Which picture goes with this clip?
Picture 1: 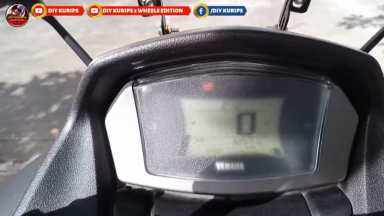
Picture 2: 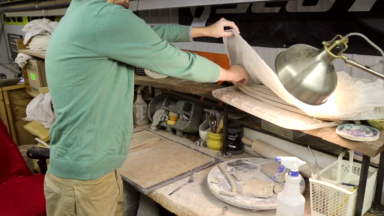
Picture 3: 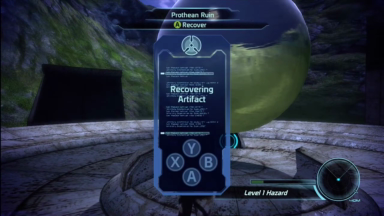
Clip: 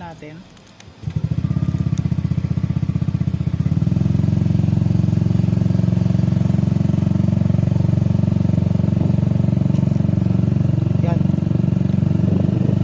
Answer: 1